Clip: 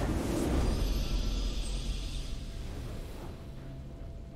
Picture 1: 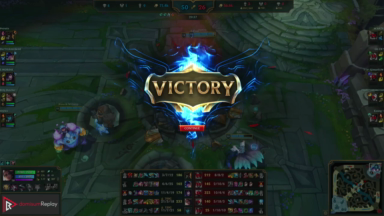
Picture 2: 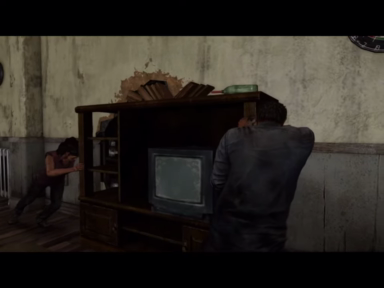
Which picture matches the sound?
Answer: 1